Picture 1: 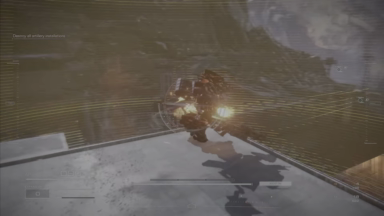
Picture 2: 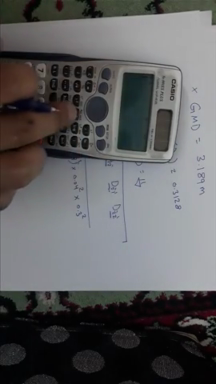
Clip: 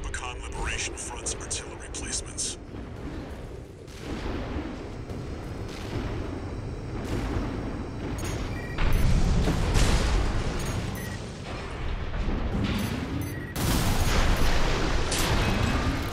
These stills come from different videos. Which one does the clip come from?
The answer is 1